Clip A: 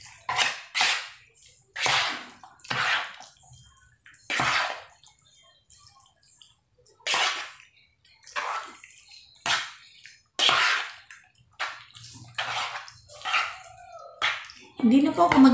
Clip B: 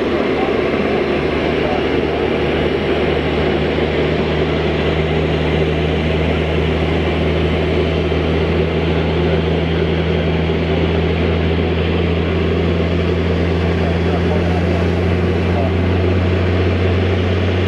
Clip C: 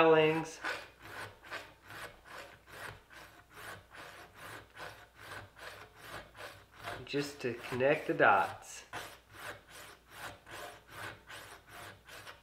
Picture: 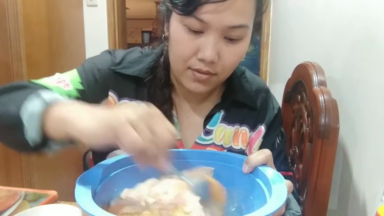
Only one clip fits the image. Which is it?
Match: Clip A